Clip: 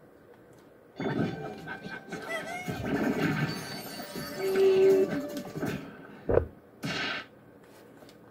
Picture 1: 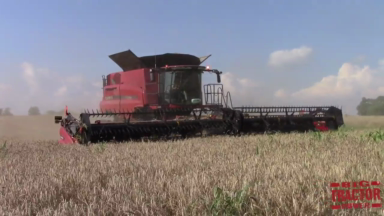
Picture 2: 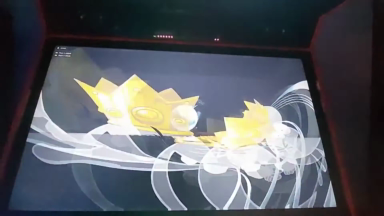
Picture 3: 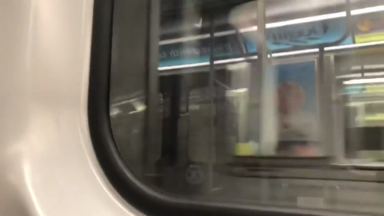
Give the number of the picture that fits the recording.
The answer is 2